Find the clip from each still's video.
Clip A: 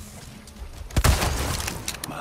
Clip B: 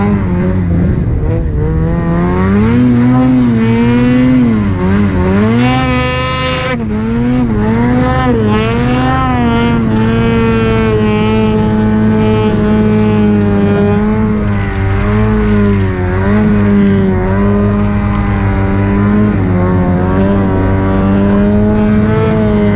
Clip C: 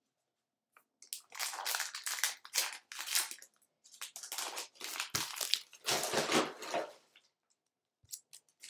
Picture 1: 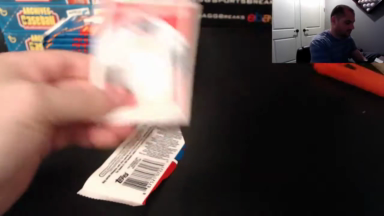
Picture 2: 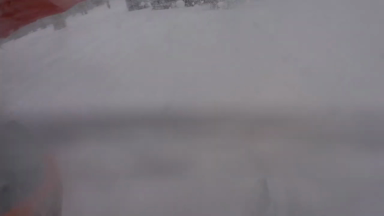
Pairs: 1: C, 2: B